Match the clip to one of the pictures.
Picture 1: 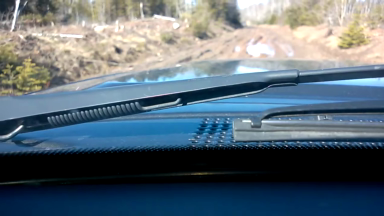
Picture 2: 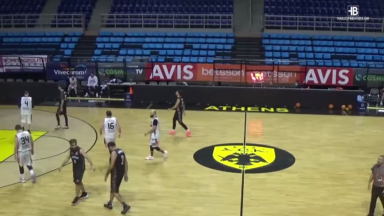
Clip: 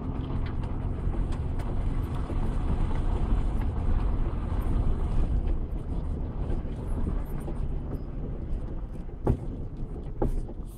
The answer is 1